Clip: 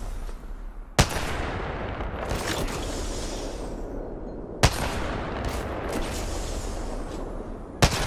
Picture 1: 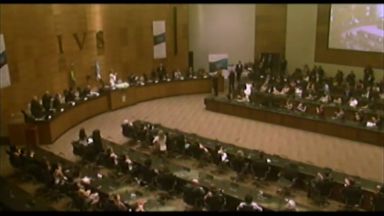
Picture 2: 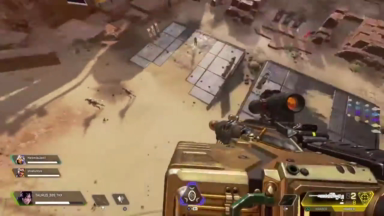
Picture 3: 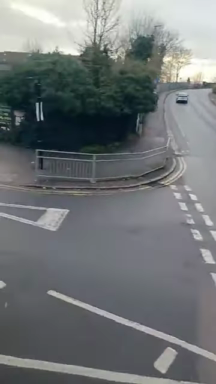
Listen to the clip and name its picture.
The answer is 2